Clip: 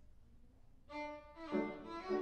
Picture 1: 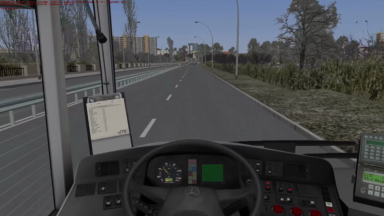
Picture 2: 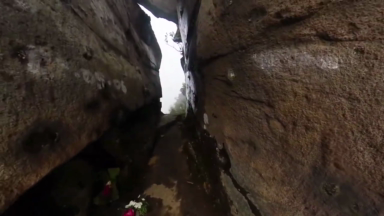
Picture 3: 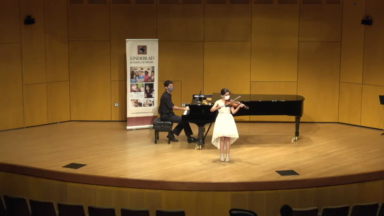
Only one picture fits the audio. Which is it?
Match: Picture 3